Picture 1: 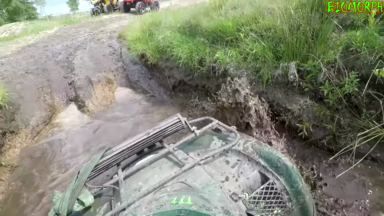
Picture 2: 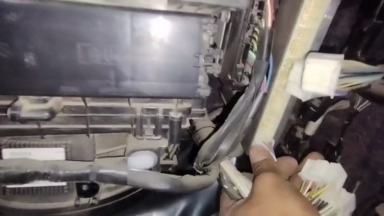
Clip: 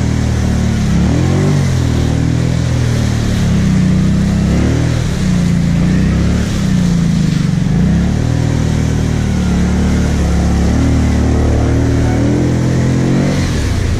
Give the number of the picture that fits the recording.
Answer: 1